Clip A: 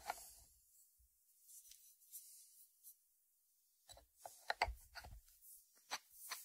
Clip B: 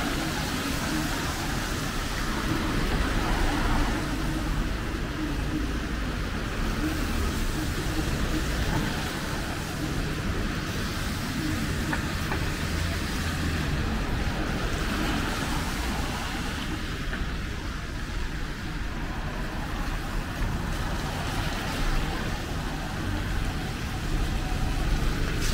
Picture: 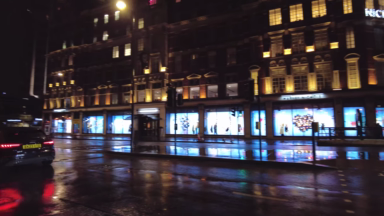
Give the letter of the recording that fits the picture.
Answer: B